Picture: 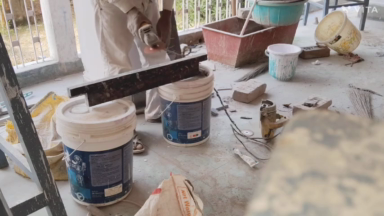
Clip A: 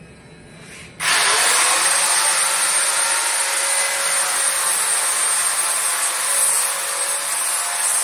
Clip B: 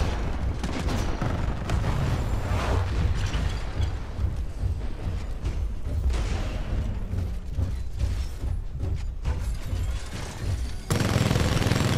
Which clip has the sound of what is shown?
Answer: A